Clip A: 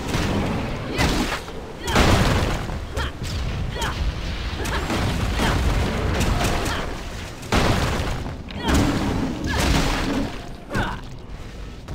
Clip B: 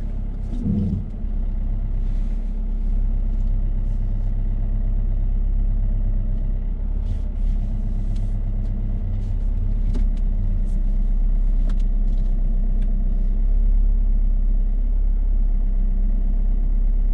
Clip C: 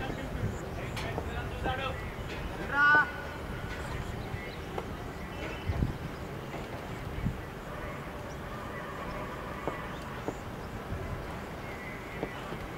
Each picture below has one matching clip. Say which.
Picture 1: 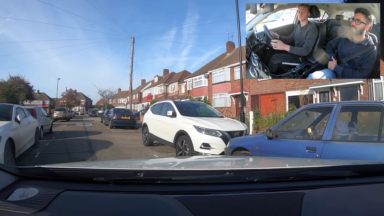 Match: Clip B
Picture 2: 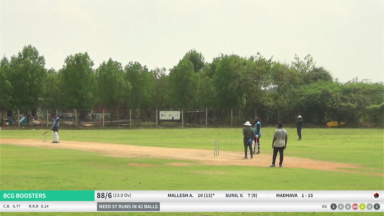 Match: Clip C